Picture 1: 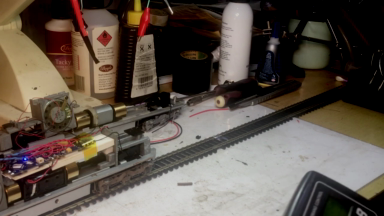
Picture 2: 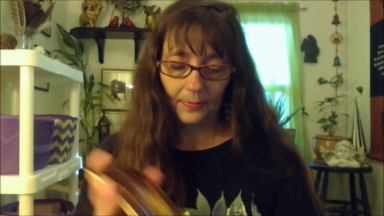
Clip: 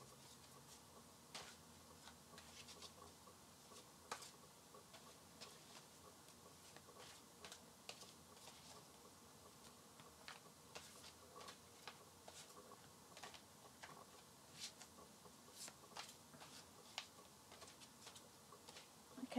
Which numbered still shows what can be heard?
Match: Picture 2